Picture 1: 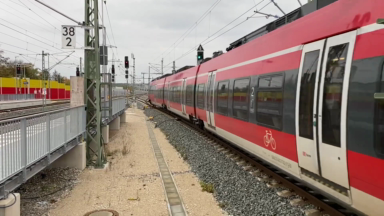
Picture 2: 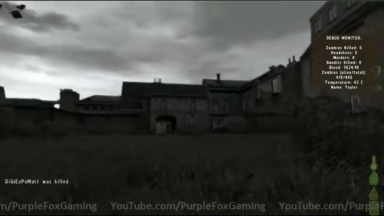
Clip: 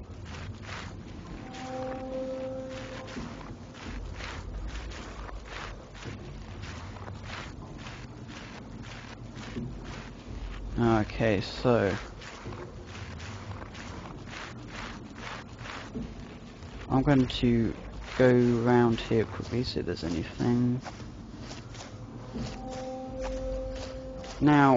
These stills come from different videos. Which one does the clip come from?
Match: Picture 2